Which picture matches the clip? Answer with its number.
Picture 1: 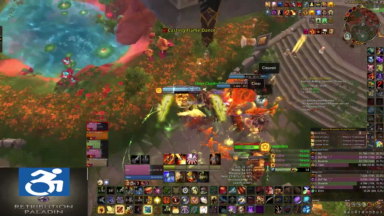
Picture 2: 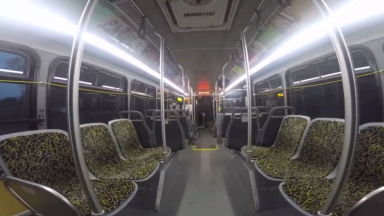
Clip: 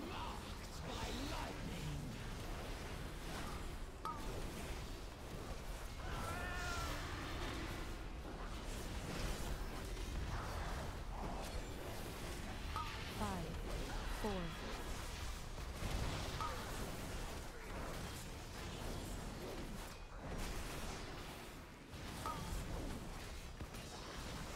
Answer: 1